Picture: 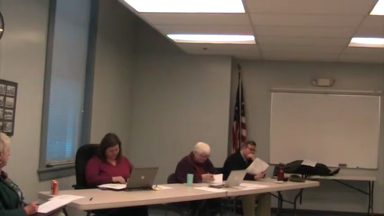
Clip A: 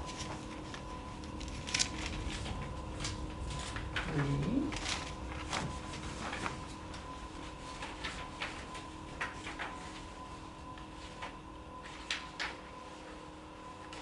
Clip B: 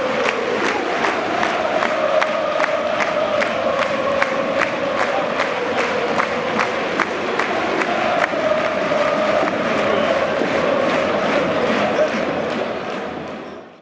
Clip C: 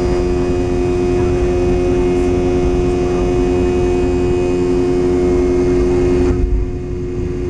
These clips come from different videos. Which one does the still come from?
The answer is A